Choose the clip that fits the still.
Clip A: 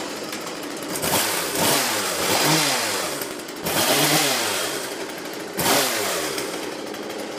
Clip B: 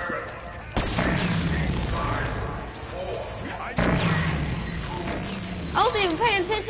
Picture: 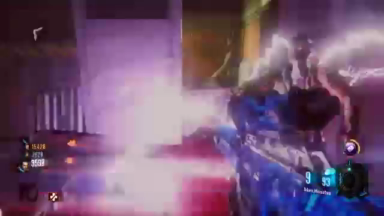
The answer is B